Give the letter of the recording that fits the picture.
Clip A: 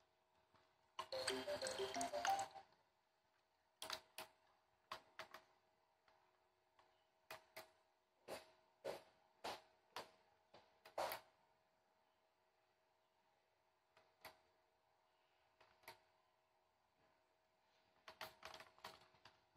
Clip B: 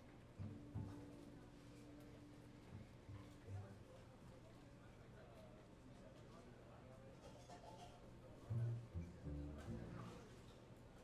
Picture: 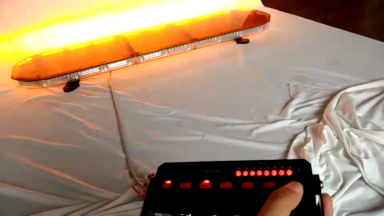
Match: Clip A